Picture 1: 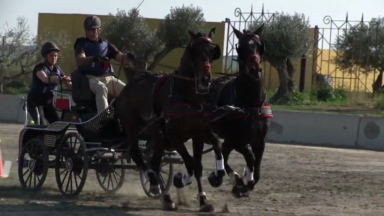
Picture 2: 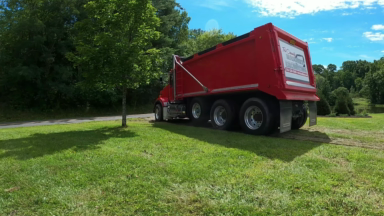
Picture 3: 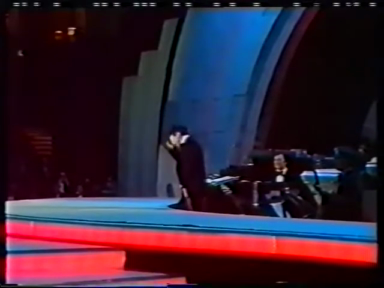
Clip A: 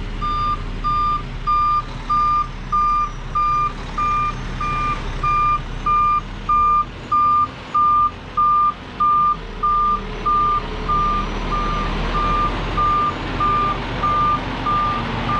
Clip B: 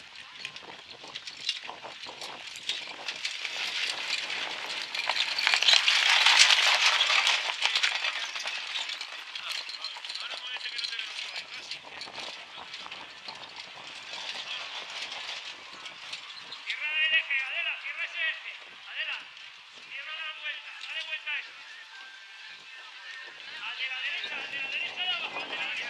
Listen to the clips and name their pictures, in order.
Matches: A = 2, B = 1